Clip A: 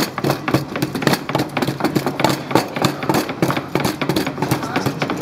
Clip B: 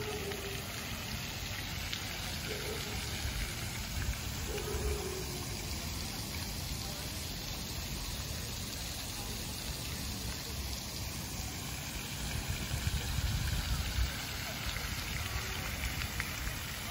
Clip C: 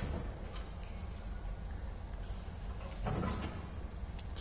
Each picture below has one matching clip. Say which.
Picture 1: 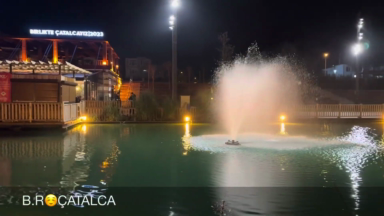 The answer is B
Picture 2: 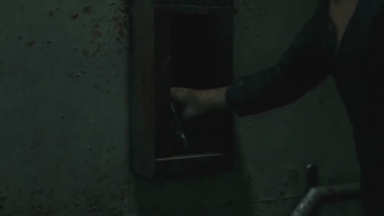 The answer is C